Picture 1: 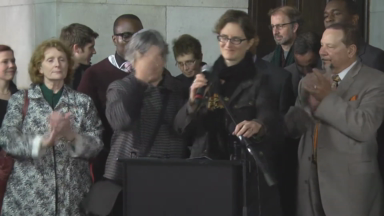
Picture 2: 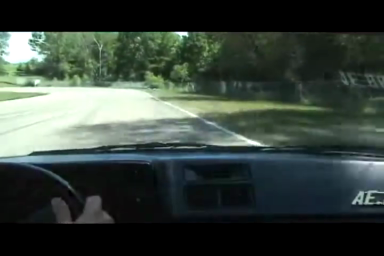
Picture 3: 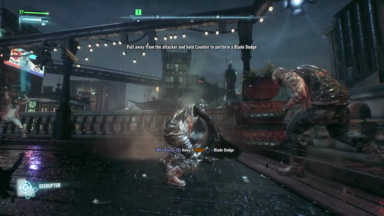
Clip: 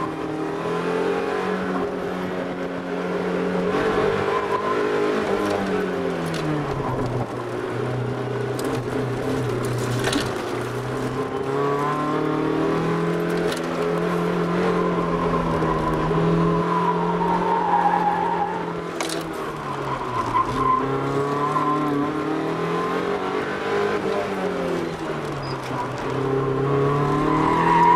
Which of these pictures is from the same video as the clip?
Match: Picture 2